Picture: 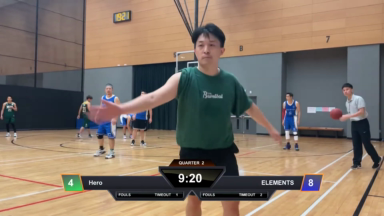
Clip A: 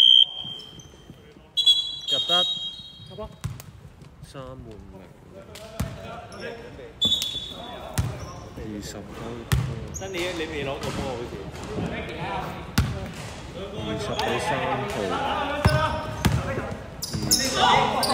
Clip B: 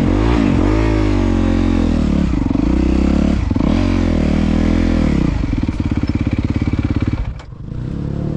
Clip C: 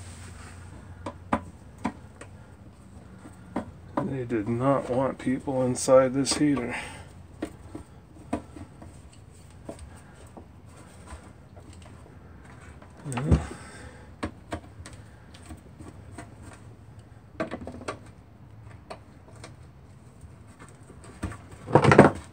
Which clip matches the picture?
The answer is A